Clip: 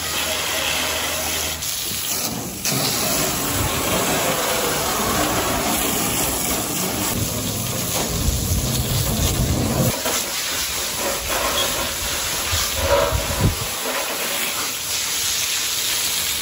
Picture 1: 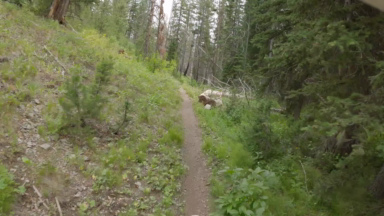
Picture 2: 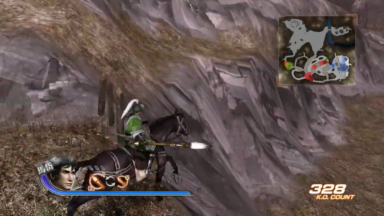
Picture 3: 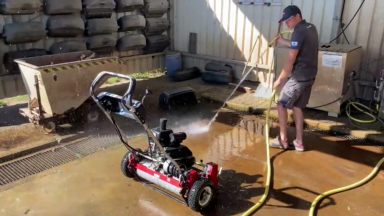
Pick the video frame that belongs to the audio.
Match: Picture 3